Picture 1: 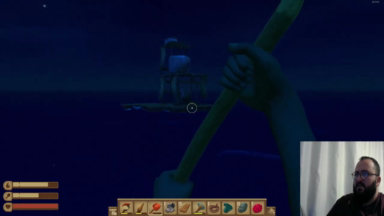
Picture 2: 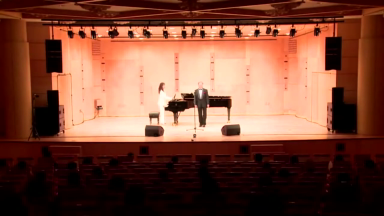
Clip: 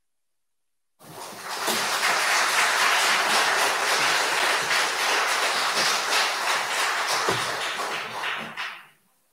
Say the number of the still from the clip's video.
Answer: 2